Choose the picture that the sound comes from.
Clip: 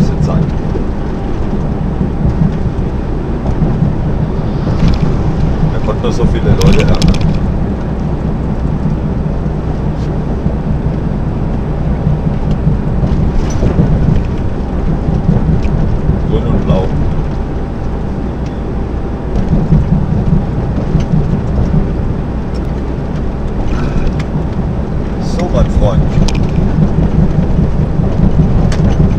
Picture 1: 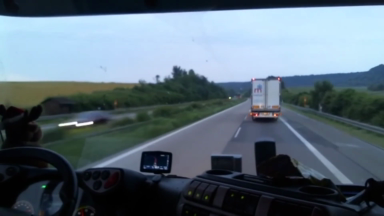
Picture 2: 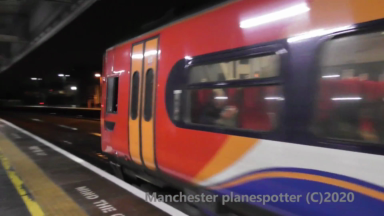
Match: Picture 1